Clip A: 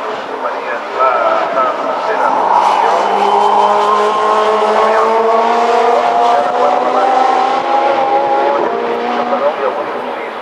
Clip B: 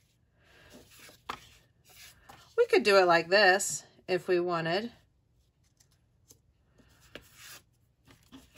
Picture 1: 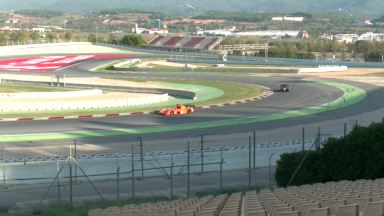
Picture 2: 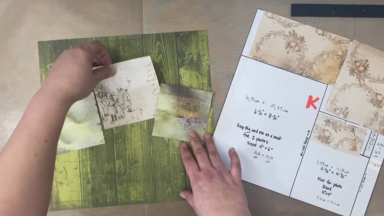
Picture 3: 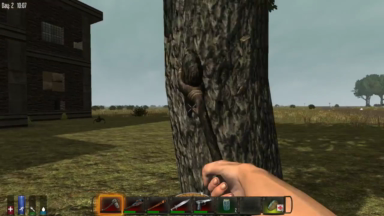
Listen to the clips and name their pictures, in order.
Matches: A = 1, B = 2